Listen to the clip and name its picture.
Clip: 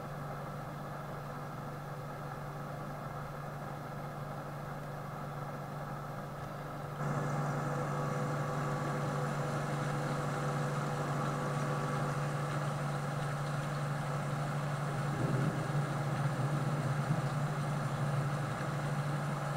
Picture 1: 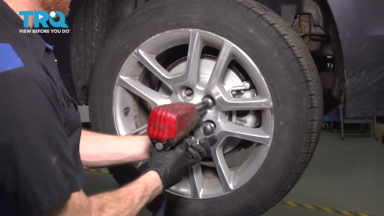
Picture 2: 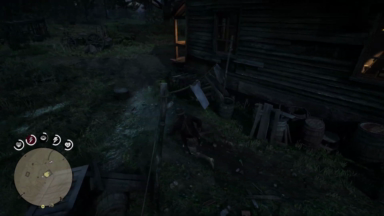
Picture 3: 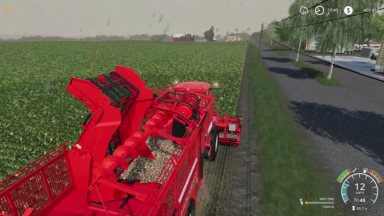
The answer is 3